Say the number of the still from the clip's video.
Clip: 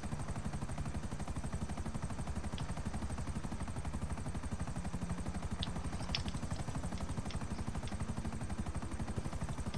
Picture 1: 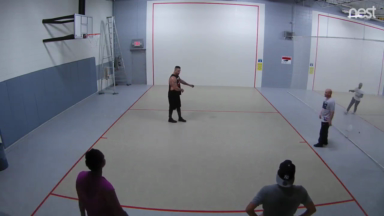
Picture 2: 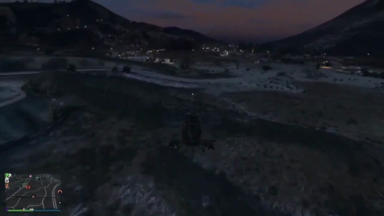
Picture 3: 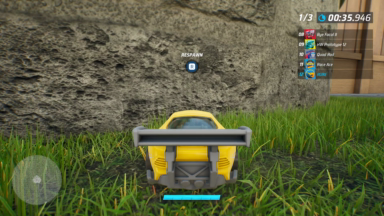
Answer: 2